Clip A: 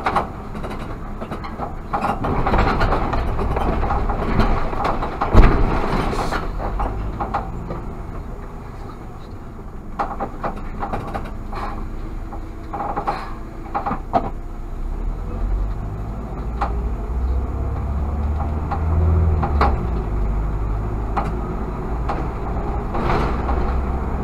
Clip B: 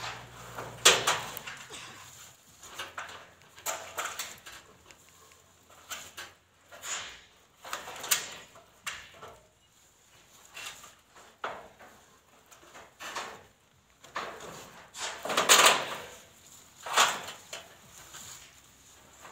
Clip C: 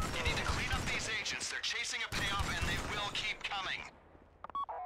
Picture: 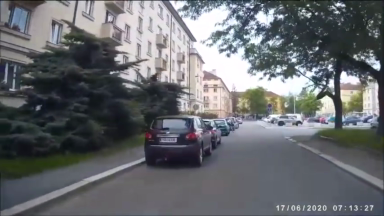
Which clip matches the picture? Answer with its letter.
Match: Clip A